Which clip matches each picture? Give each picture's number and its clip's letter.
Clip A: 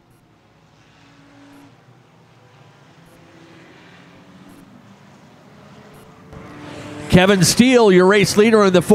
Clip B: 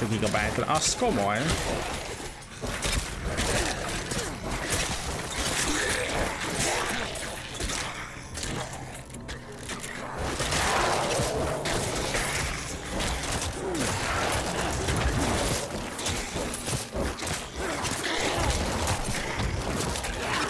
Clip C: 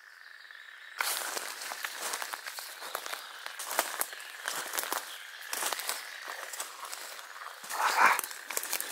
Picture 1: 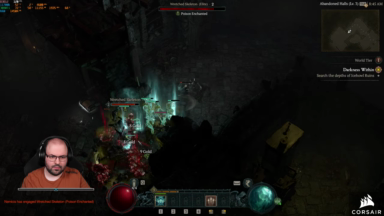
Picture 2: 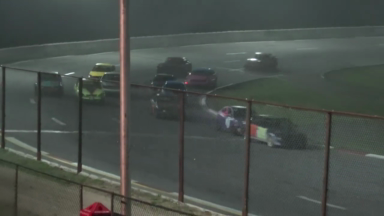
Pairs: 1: B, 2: A